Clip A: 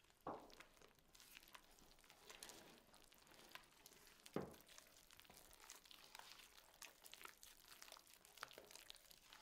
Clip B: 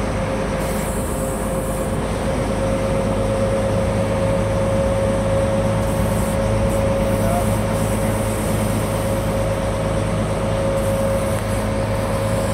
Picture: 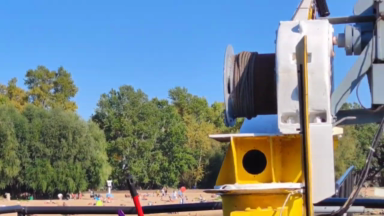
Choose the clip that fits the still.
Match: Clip B